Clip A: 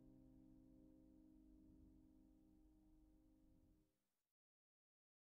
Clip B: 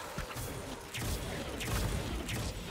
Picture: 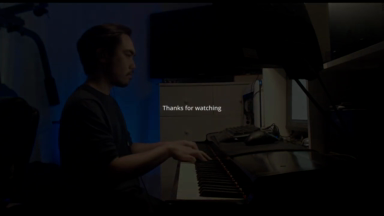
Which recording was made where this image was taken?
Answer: A